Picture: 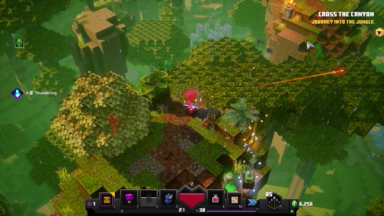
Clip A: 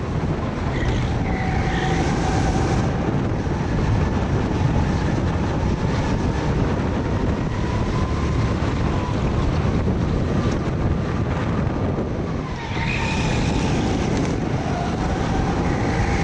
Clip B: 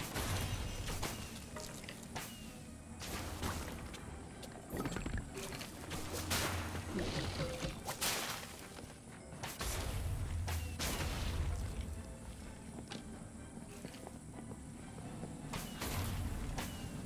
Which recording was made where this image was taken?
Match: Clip B